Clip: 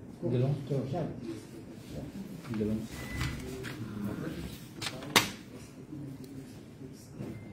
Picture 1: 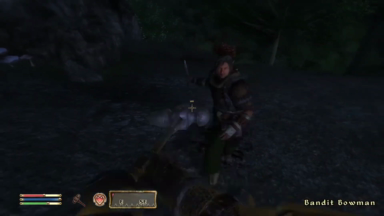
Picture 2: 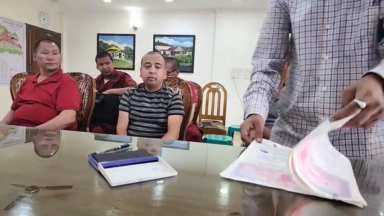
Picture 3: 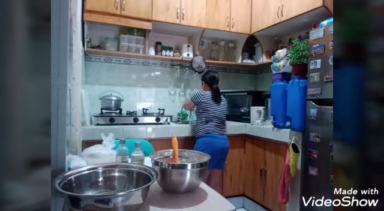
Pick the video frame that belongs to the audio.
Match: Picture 2